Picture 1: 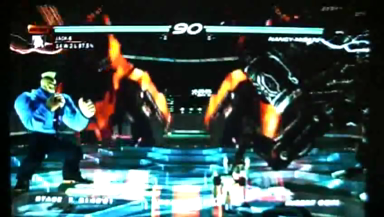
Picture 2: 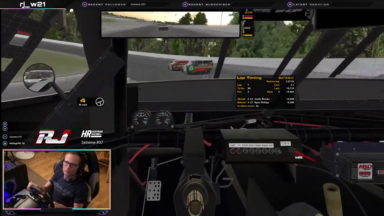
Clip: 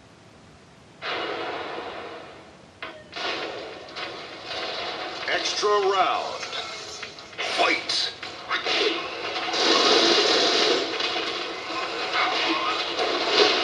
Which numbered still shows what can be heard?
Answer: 1